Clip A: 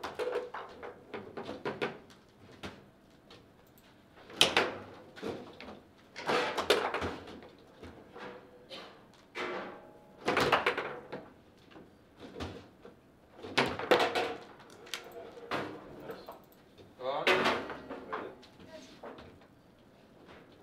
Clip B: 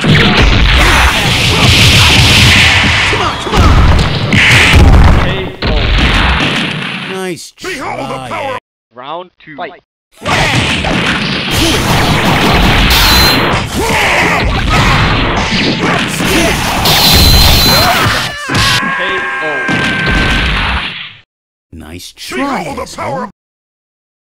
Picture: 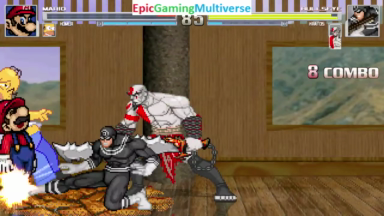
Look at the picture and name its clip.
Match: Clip B